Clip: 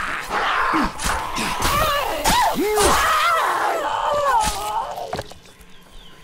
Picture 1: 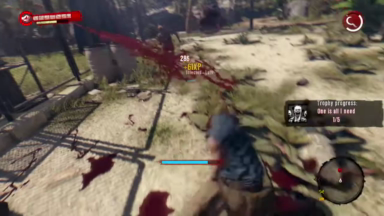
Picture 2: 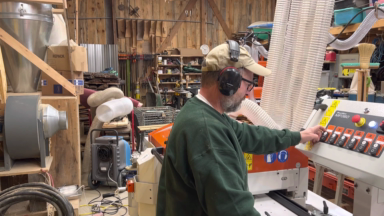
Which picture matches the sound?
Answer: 1